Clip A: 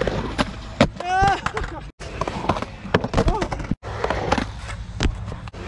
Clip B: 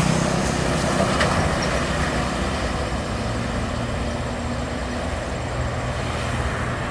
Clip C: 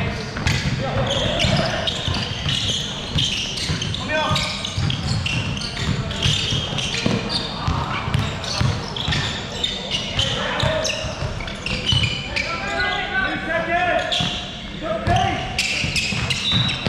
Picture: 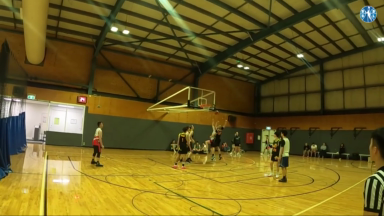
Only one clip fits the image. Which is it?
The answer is C